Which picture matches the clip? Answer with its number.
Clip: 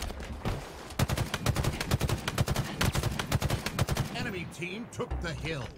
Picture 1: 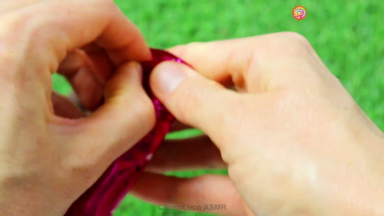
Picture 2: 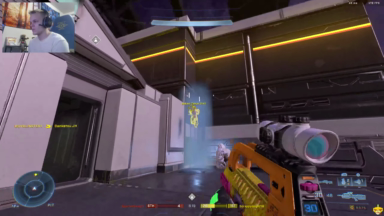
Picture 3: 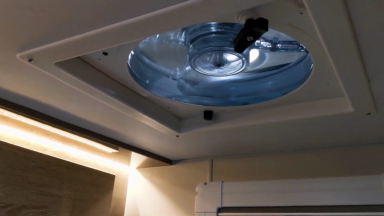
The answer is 2